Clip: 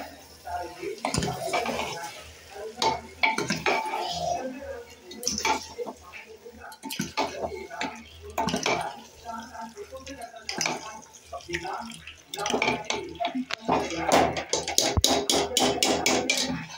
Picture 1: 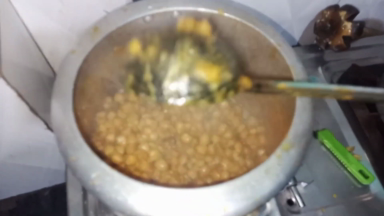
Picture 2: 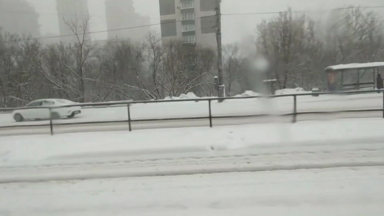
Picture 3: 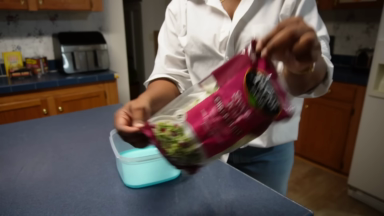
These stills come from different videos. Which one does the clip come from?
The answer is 1